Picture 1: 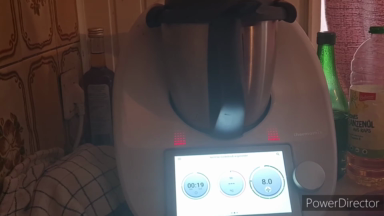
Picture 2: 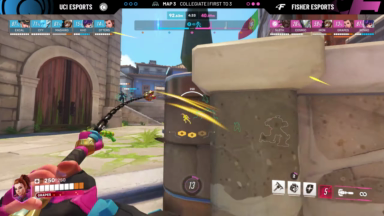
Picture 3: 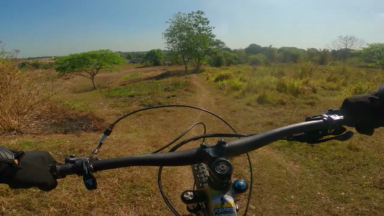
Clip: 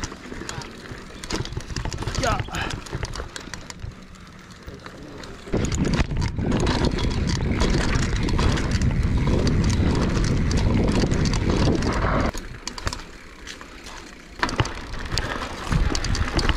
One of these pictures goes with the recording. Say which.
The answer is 3